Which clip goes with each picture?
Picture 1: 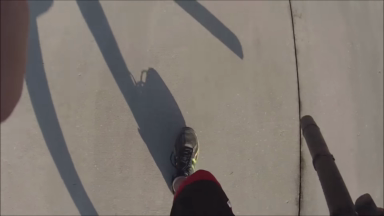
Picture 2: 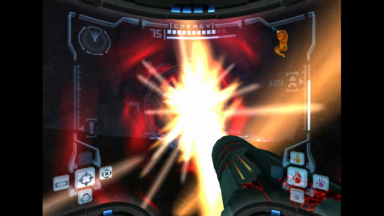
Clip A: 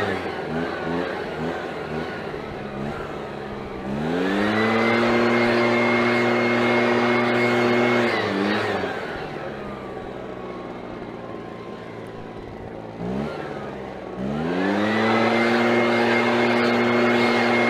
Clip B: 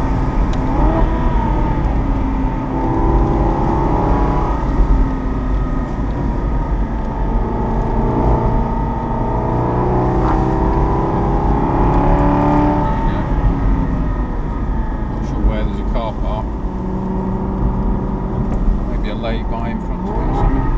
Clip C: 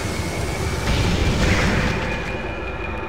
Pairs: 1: A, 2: C